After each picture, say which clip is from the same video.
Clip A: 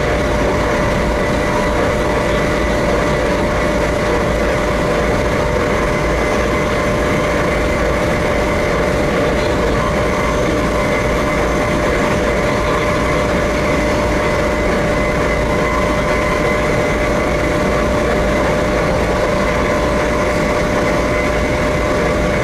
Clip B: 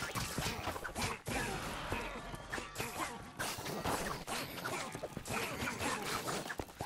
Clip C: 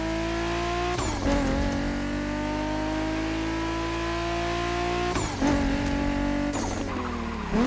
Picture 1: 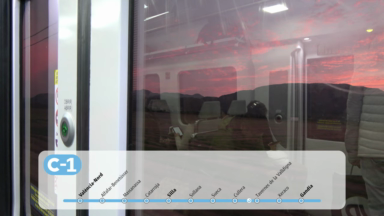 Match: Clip A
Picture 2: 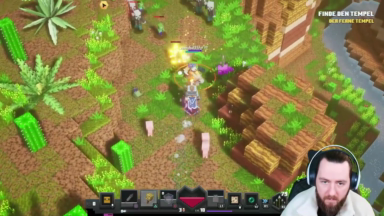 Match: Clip B